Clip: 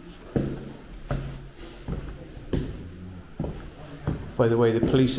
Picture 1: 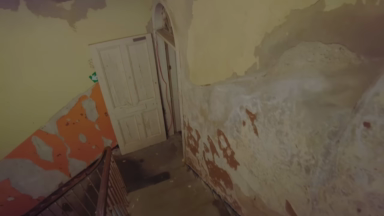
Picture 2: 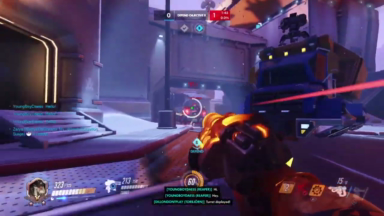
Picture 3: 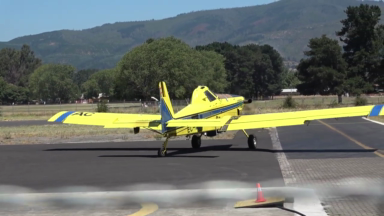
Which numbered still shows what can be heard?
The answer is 1